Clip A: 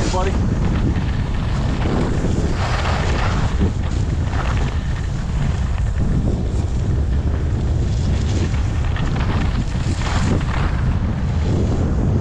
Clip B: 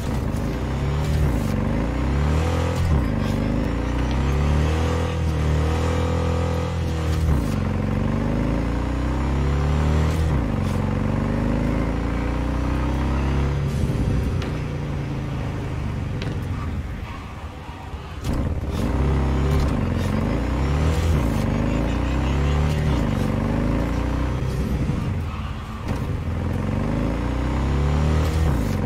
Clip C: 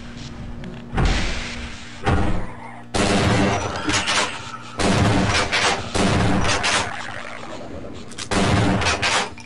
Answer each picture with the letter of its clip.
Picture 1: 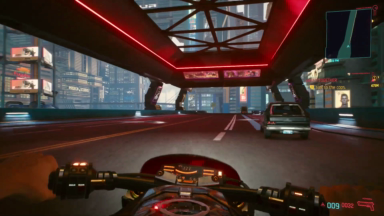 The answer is B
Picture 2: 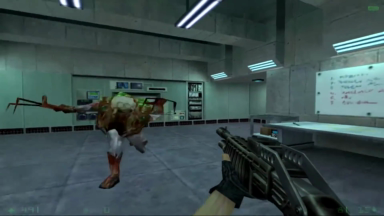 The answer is C